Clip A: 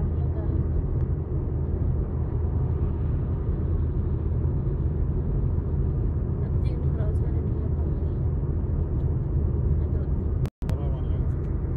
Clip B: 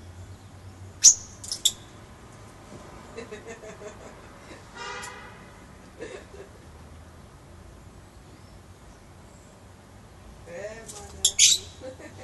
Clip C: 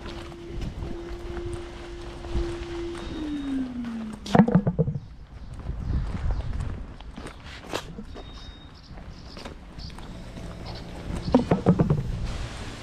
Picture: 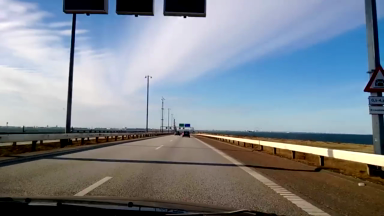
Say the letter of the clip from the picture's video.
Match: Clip A